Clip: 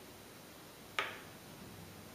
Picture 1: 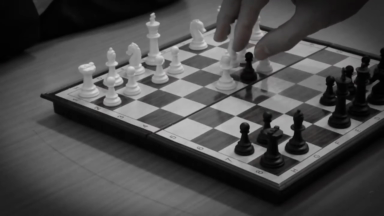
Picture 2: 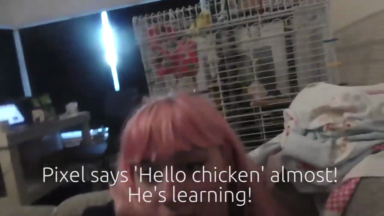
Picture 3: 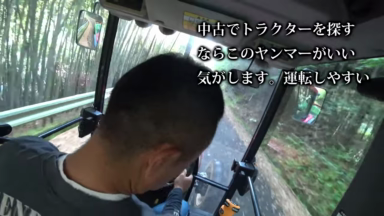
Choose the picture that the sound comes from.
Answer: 1